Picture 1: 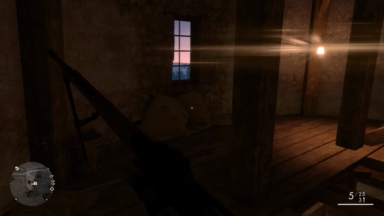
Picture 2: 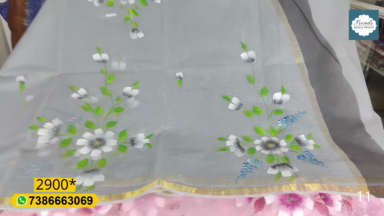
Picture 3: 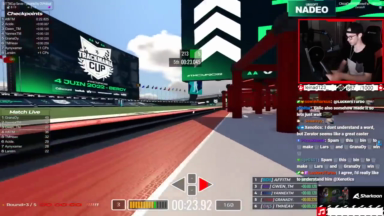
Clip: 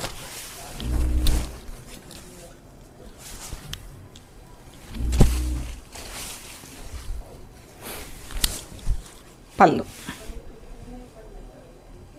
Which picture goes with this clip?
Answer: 2